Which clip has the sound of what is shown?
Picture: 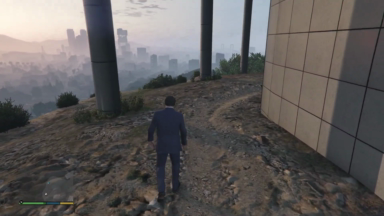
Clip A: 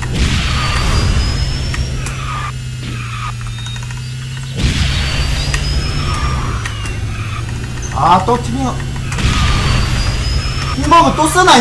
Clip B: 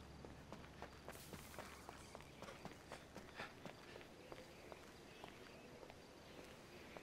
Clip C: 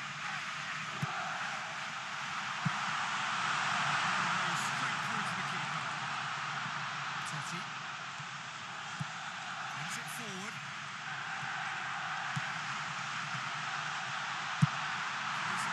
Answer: B